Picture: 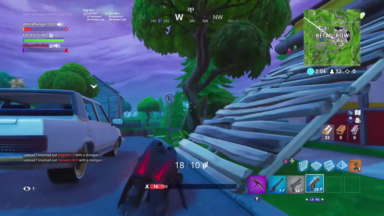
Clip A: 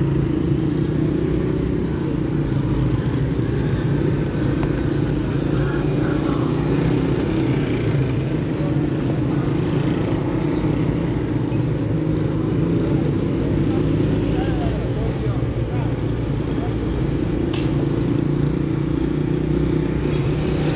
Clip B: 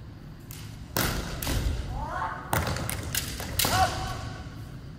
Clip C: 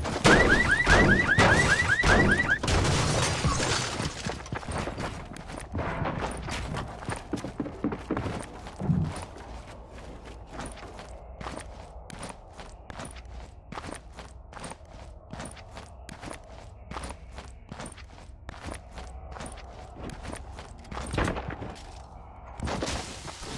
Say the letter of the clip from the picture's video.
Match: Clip C